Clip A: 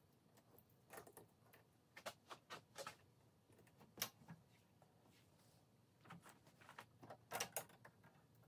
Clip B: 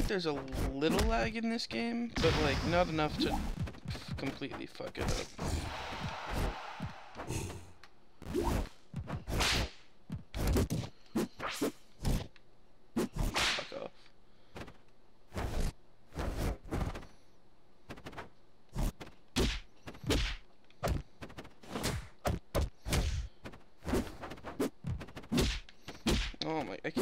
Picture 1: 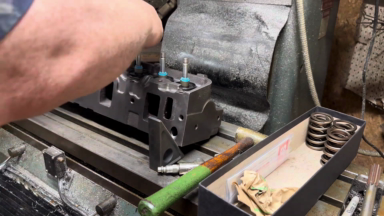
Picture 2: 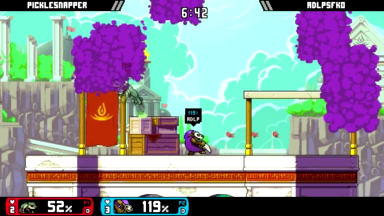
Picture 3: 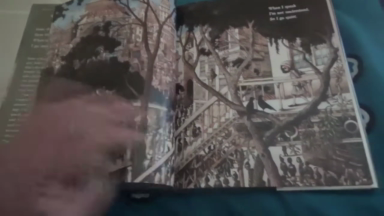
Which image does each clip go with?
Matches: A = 1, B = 2